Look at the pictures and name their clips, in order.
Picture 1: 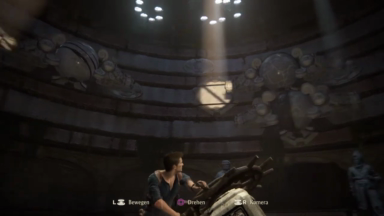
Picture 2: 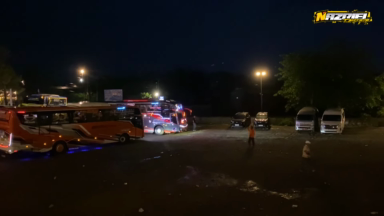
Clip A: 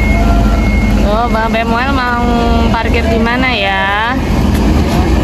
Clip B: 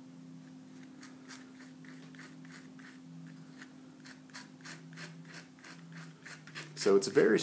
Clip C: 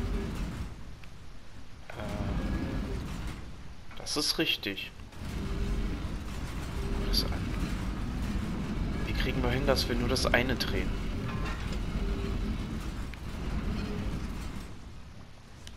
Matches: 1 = C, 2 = A